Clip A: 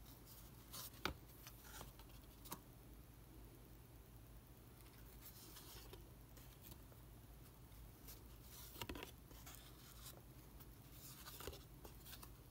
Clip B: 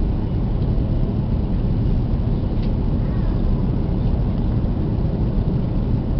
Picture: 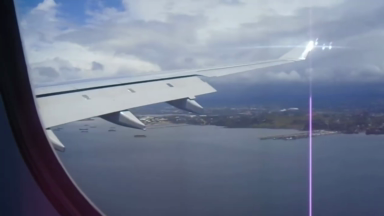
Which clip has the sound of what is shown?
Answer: B